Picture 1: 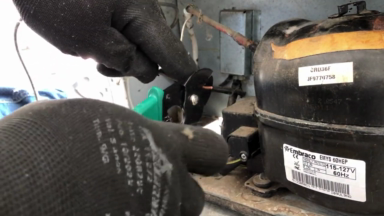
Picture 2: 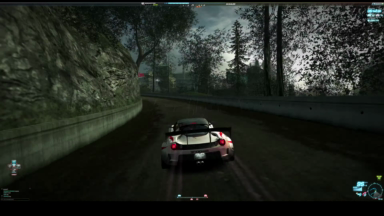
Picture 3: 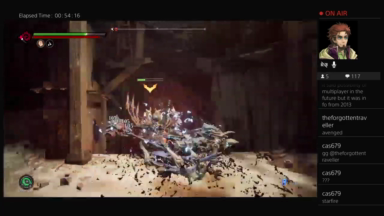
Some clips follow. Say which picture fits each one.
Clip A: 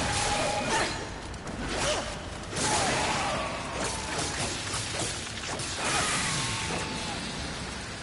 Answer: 3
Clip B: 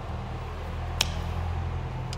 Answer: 1